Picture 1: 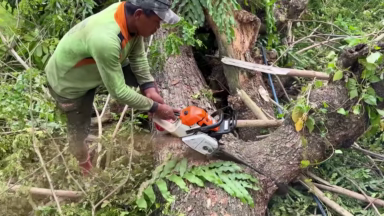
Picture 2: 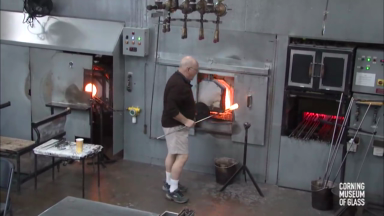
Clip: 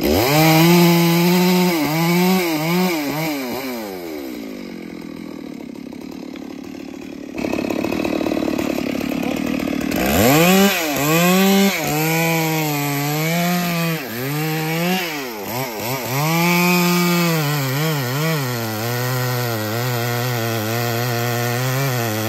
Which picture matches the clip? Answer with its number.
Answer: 1